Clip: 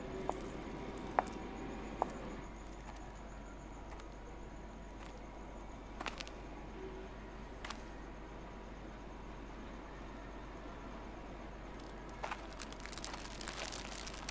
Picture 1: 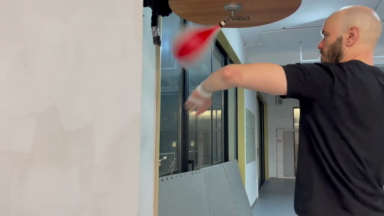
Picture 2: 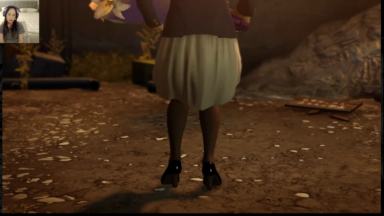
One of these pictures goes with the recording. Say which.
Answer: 2